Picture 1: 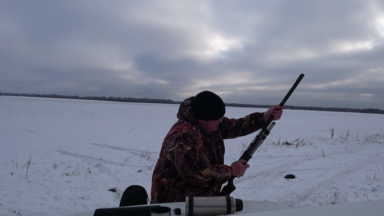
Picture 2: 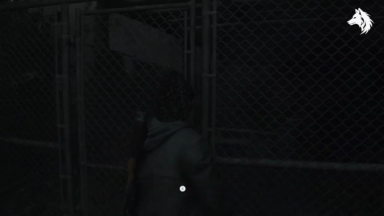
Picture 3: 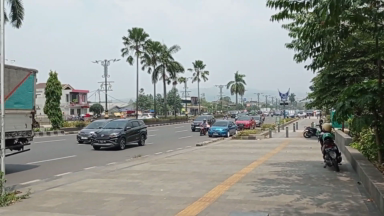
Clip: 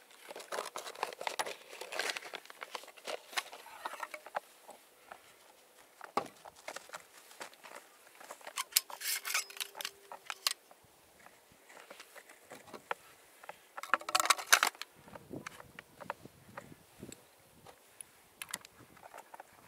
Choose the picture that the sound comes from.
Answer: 1